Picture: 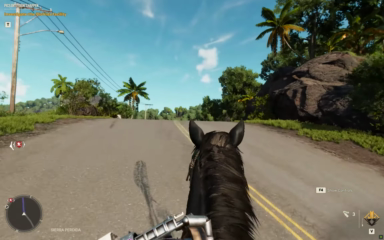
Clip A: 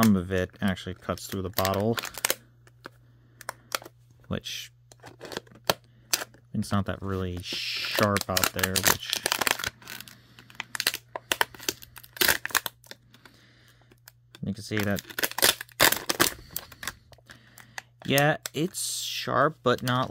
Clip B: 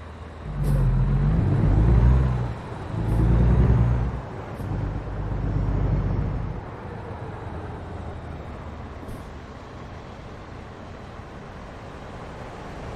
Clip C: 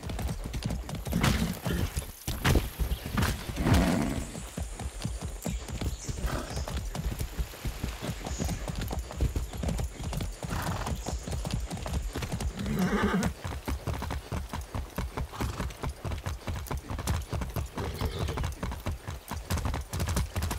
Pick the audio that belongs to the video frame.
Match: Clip C